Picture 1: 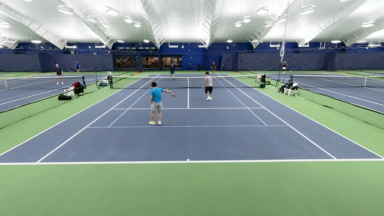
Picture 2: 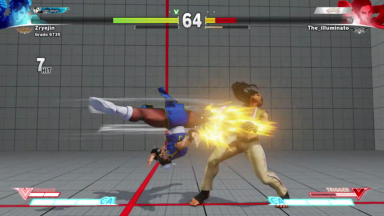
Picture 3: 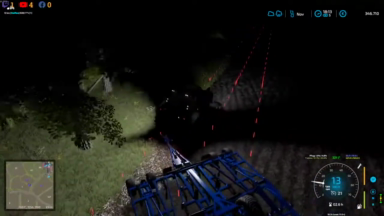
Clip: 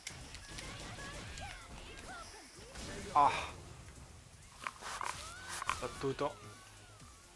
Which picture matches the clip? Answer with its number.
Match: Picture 2